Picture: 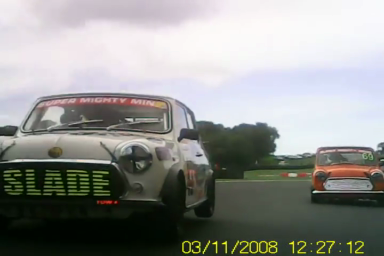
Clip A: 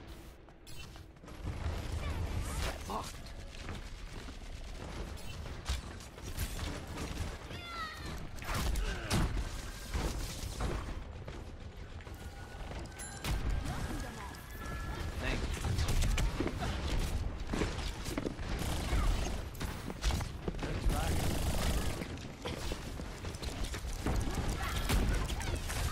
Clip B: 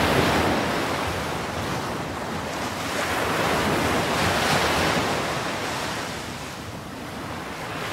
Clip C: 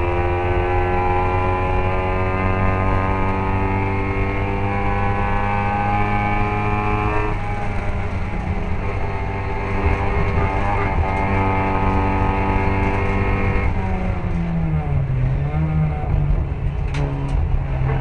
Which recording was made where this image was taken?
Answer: C